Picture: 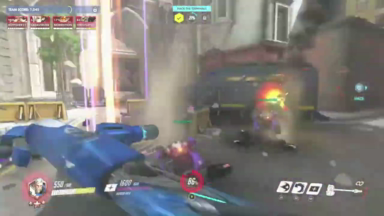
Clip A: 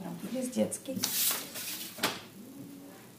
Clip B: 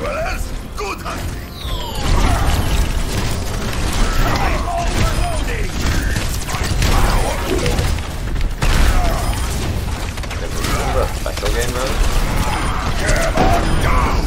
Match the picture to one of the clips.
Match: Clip B